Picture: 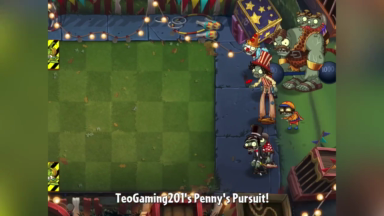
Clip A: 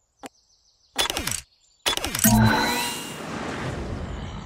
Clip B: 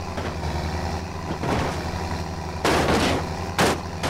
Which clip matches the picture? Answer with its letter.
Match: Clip A